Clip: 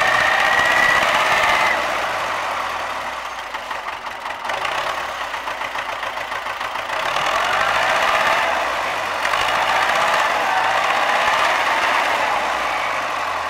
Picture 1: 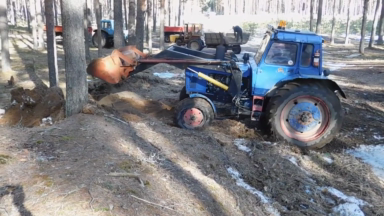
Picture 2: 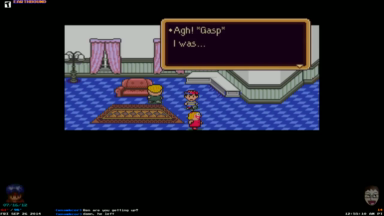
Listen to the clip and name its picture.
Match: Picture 1